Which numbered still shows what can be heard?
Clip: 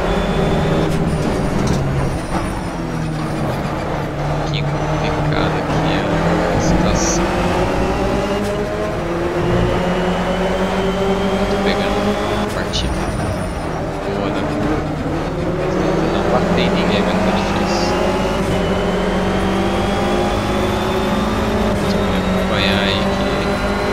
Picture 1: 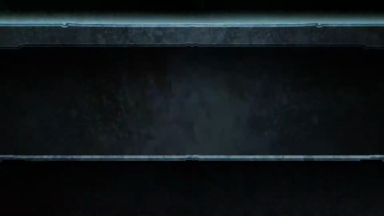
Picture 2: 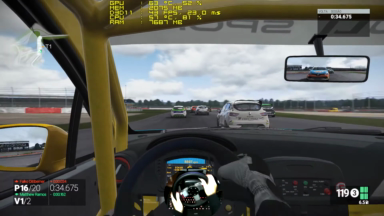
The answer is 2